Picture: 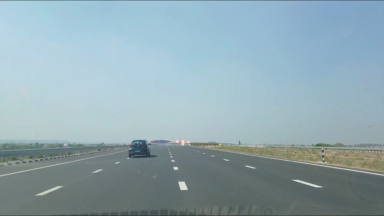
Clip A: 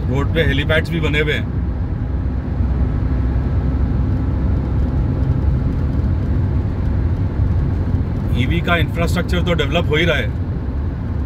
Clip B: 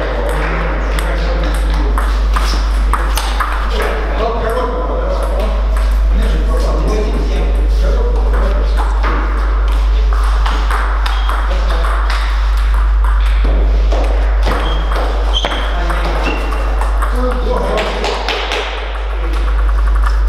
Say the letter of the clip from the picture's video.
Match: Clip A